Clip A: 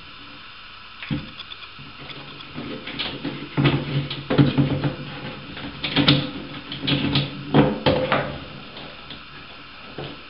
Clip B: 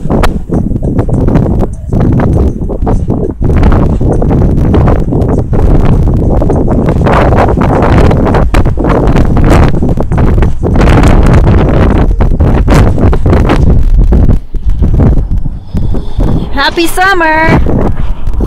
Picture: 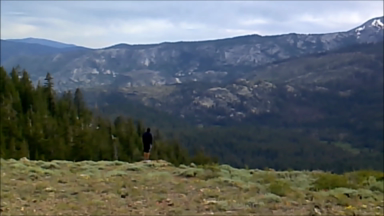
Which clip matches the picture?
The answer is B